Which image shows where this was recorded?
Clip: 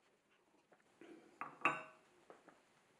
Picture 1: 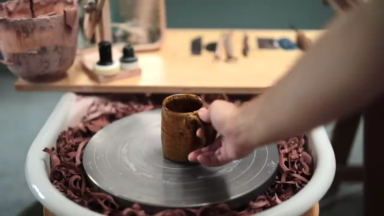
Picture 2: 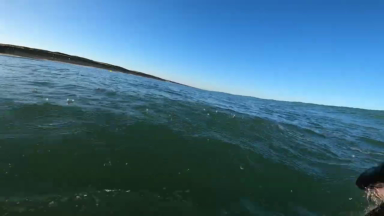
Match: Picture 1